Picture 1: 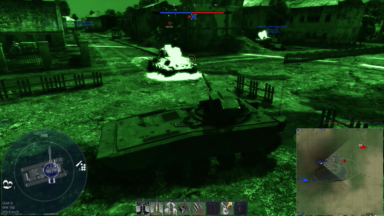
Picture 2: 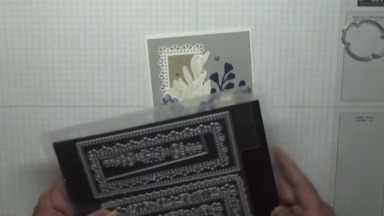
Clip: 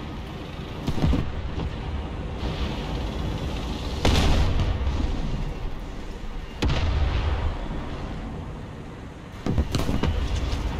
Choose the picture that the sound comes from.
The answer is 1